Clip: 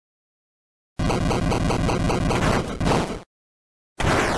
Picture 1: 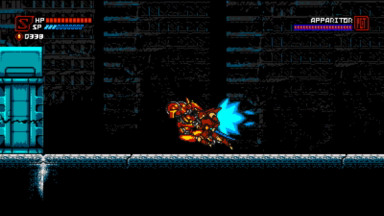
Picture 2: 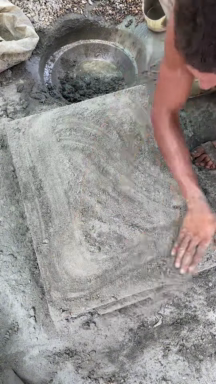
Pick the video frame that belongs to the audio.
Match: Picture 1